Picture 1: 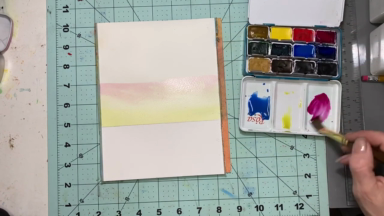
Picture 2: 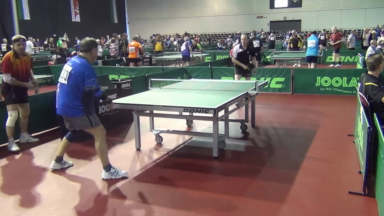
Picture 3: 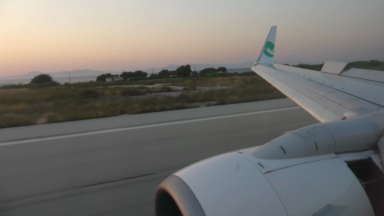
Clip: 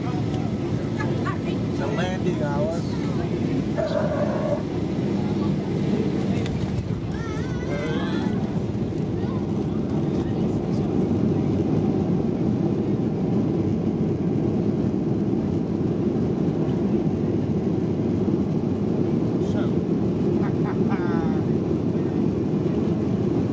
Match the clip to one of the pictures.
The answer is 3